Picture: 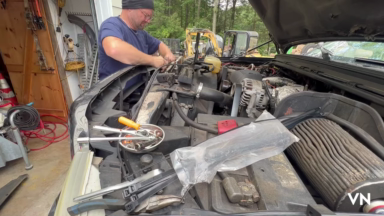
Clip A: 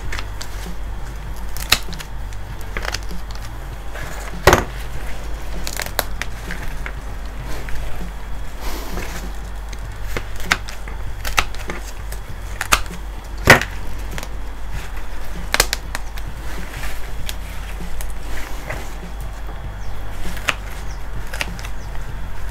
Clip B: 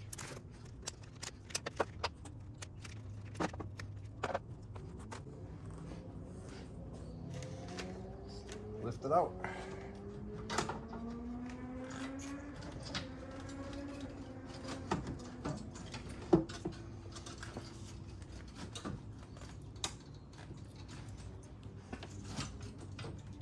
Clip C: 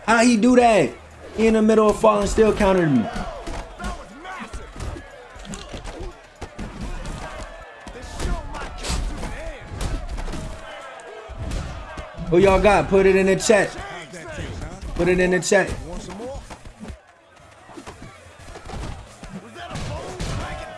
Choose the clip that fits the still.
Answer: B